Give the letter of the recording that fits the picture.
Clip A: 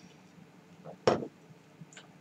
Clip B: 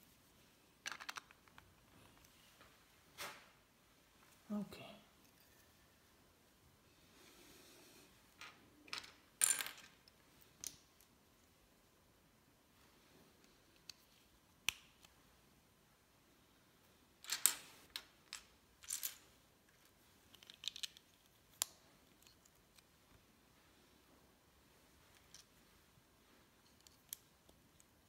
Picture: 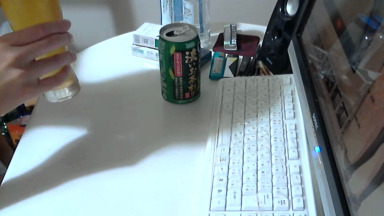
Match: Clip A